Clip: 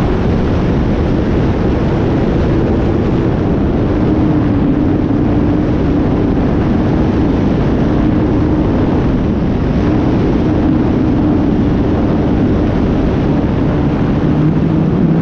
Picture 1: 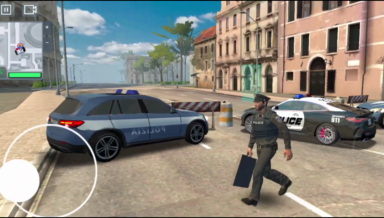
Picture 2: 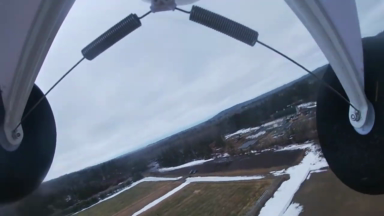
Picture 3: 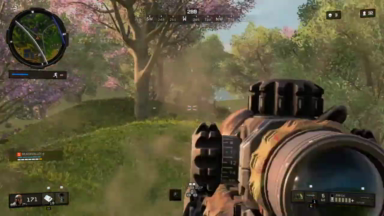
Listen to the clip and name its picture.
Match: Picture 2